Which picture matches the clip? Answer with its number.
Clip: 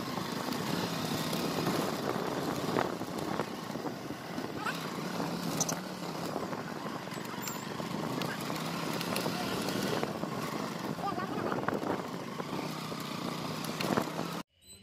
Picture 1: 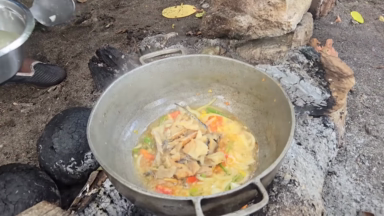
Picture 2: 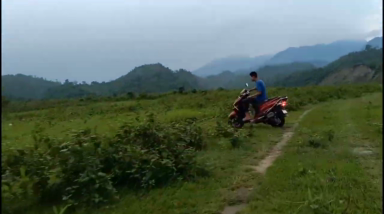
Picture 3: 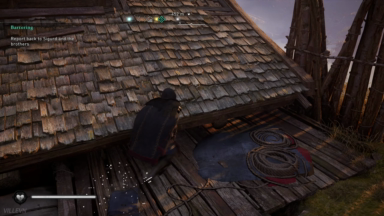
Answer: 2